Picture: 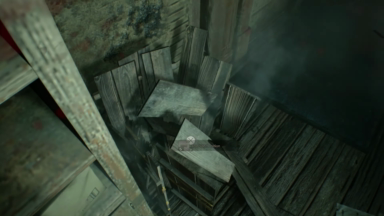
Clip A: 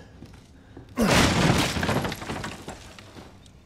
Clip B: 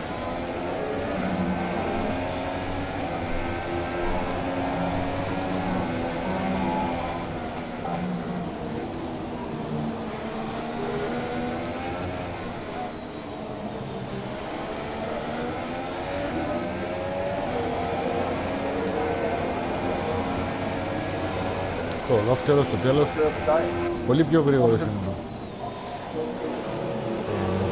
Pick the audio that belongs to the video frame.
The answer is A